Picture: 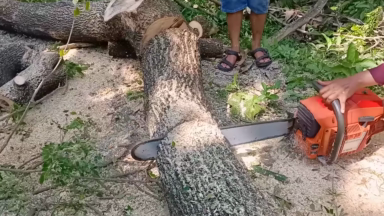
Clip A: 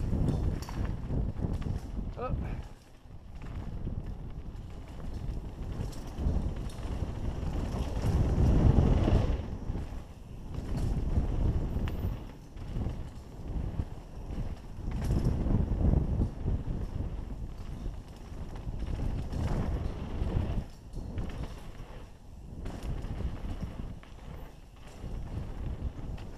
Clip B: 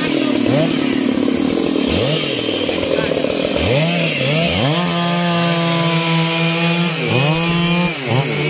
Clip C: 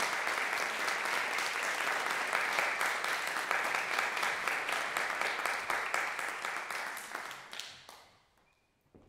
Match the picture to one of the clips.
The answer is B